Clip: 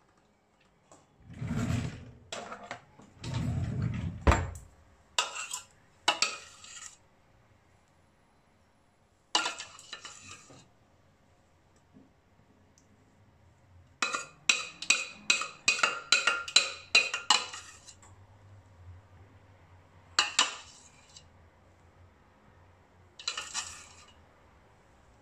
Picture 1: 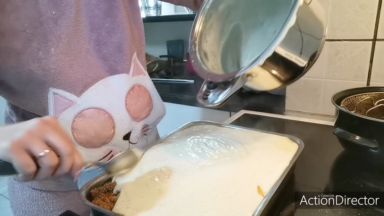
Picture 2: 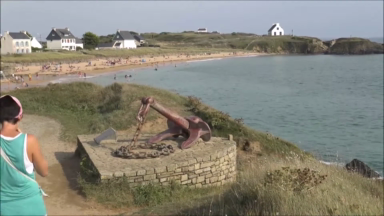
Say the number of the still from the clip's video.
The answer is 1